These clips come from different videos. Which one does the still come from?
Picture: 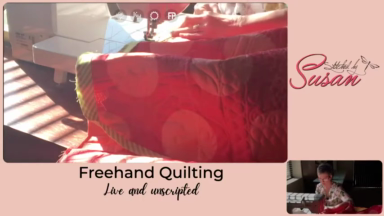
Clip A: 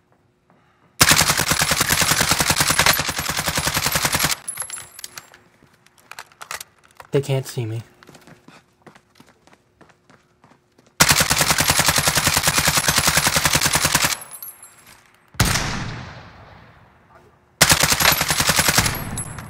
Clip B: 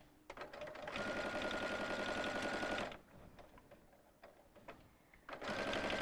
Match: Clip B